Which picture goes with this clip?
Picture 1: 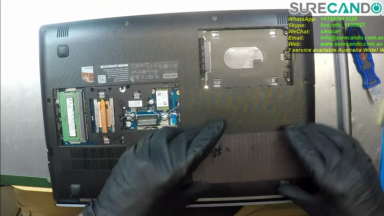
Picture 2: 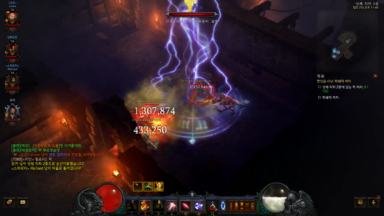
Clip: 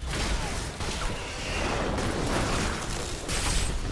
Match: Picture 2